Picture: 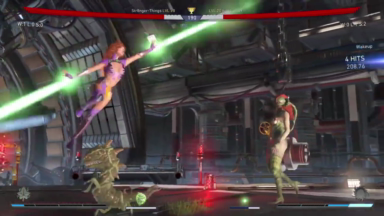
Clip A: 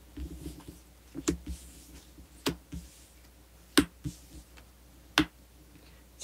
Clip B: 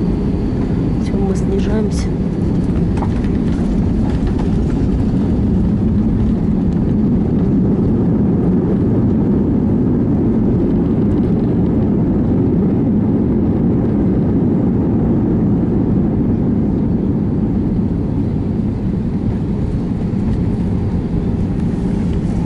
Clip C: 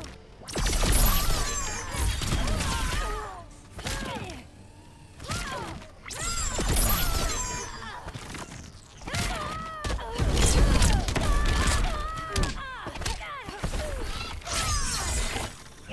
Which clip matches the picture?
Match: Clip C